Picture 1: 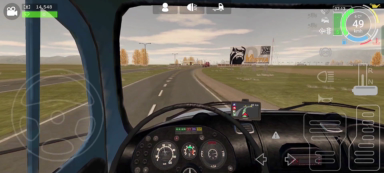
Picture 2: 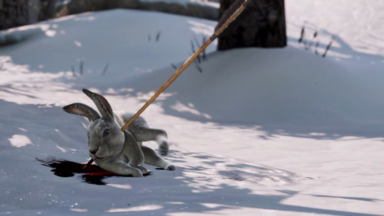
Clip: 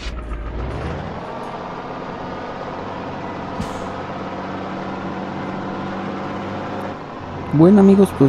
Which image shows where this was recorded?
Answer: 1